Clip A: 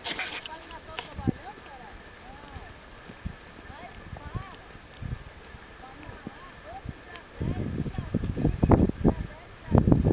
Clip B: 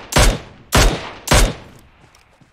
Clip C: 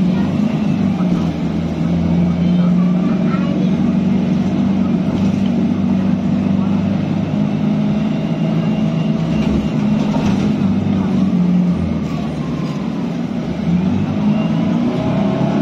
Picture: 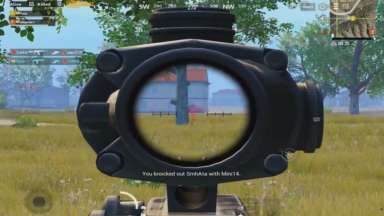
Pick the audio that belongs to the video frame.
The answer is B